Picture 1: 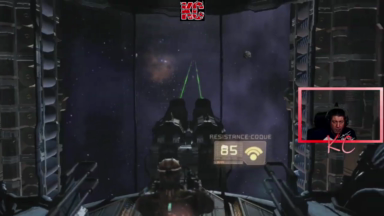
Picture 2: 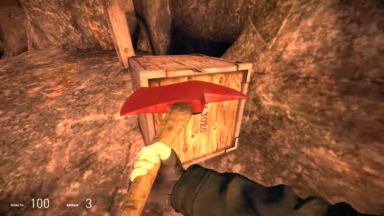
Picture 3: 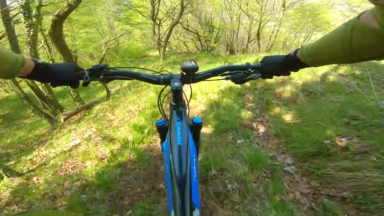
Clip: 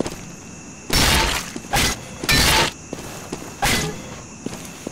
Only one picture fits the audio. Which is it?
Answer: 2